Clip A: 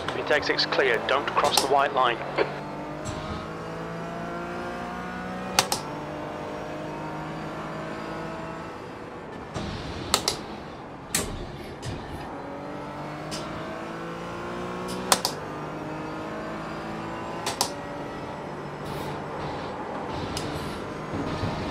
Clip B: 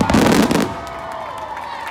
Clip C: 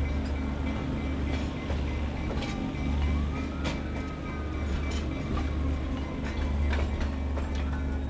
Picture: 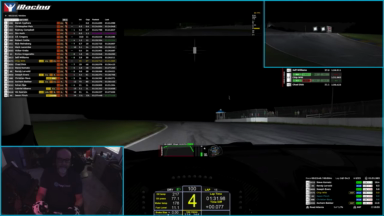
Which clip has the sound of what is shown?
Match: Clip A